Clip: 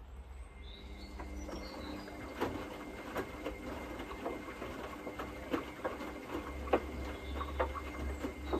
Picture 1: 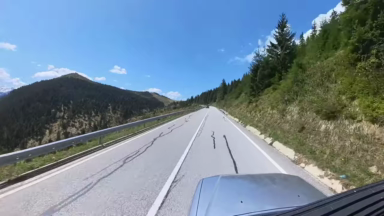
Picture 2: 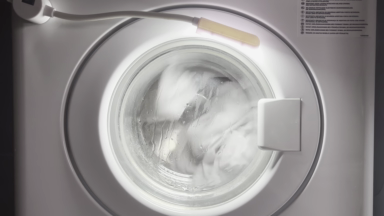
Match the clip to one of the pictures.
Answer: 2